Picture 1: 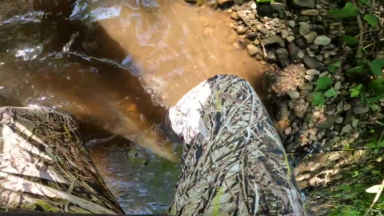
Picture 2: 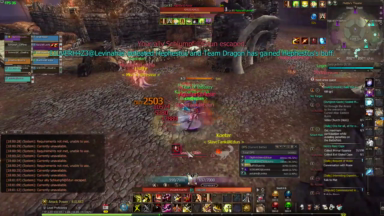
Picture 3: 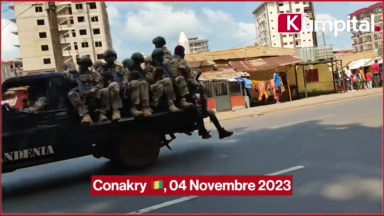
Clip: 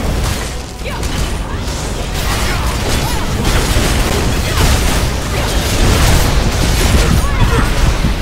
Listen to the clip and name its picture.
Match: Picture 2